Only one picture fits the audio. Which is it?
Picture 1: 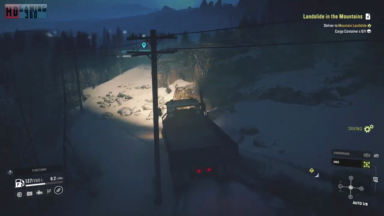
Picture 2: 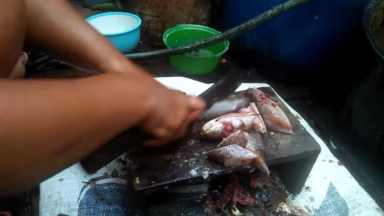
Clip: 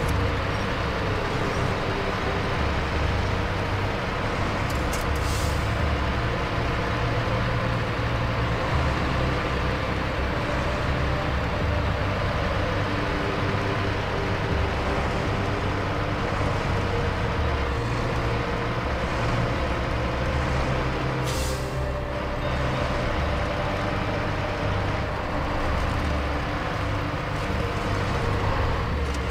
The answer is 1